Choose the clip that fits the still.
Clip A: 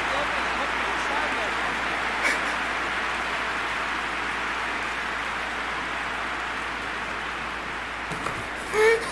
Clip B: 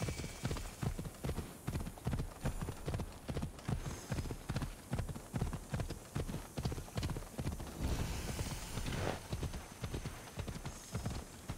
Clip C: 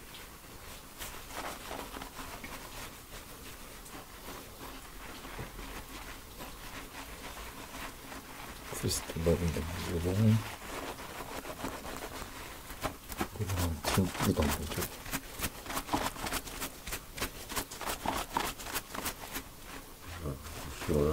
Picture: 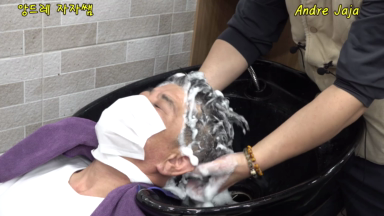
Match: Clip C